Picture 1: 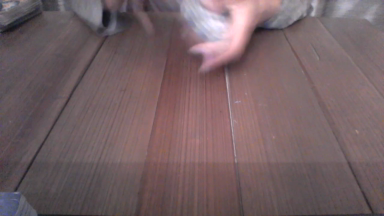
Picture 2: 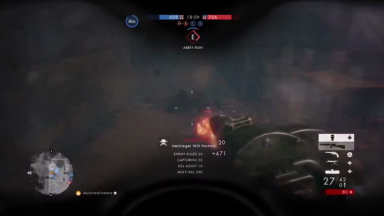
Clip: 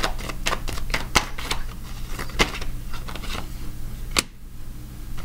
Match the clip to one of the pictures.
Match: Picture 1